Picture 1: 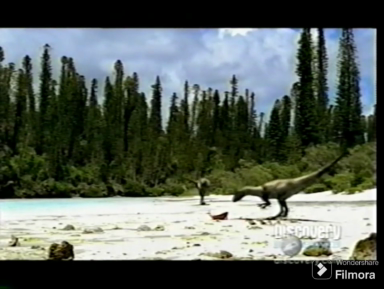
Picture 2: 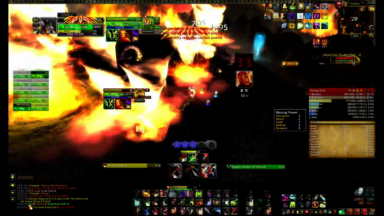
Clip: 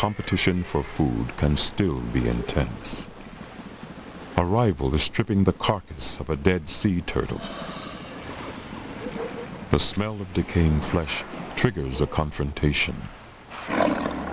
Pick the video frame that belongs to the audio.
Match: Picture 1